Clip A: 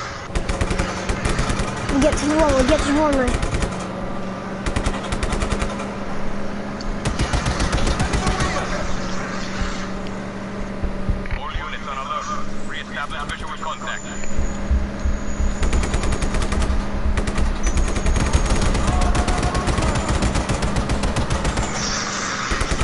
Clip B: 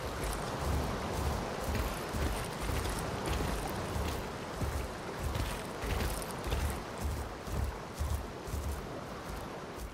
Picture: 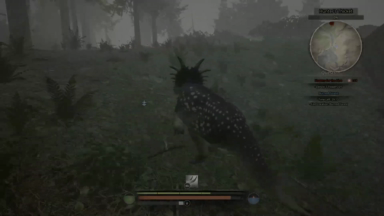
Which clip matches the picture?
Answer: B